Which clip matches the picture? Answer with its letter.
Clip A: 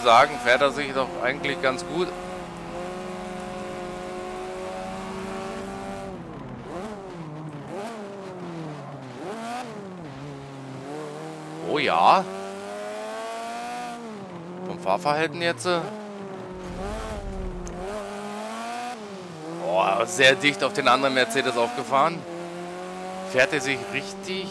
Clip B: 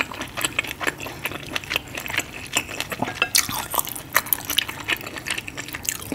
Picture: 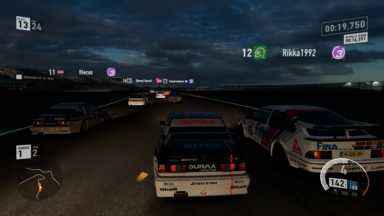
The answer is A